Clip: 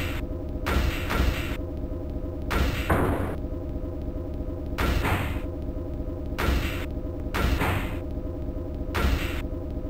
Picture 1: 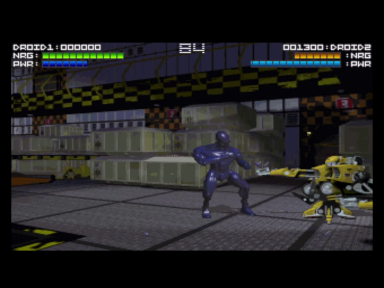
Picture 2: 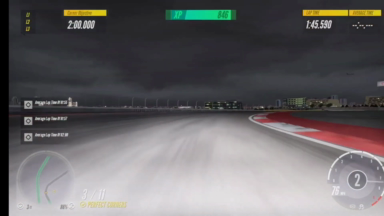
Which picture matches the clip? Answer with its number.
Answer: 1